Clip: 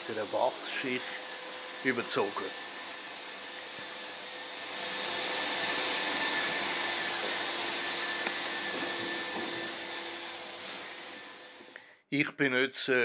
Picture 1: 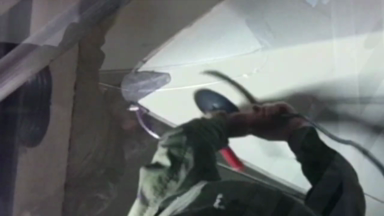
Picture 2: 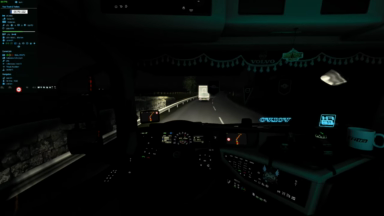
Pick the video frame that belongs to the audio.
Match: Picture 1